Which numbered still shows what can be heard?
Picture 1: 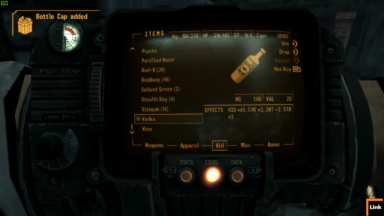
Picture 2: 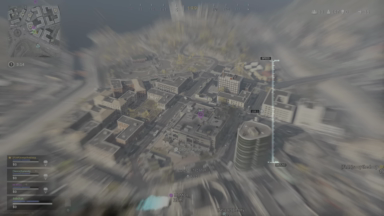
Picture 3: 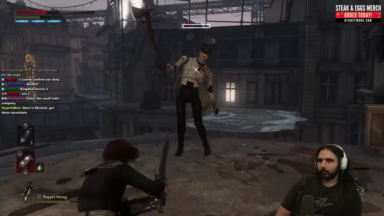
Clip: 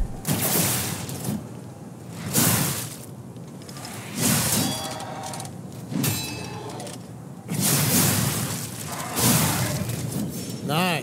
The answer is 3